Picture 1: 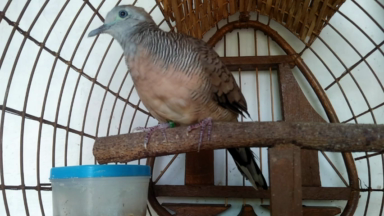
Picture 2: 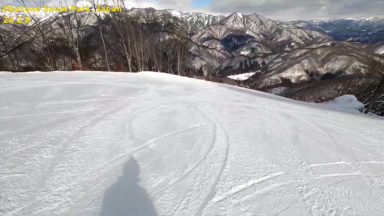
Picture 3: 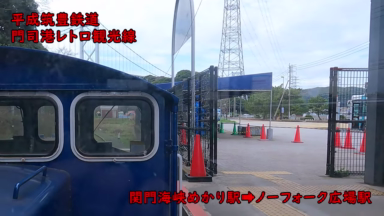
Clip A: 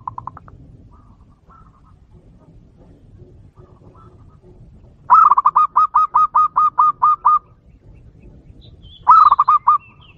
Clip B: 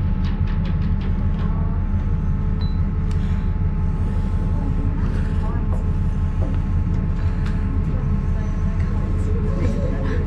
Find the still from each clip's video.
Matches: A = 1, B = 3